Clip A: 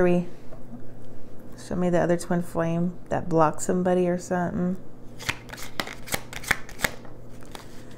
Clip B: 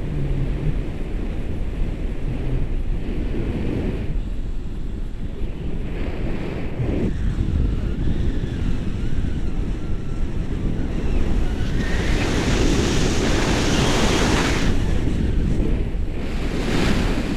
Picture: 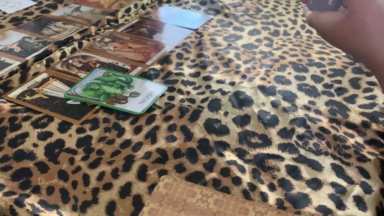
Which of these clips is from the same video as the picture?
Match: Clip A